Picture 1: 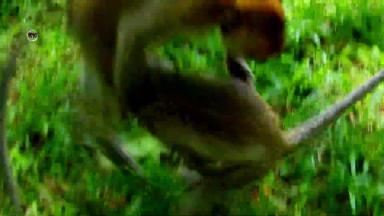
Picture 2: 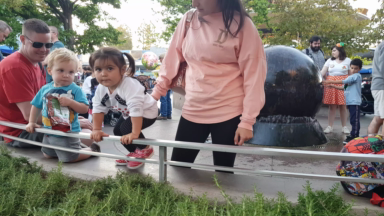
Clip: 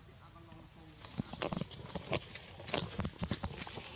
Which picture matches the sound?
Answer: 1